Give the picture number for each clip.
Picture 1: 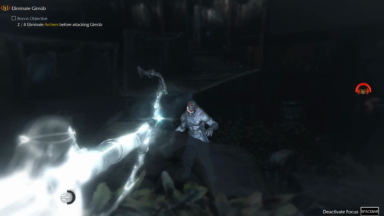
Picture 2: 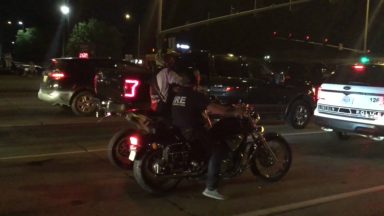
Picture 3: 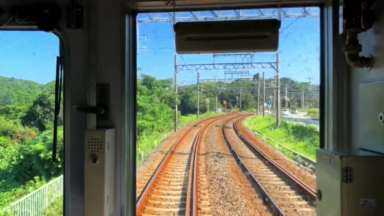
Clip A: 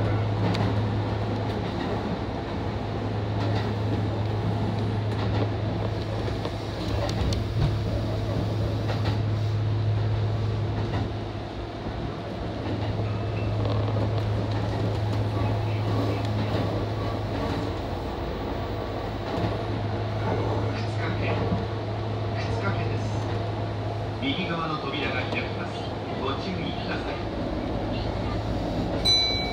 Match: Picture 3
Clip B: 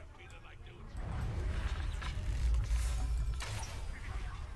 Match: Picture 1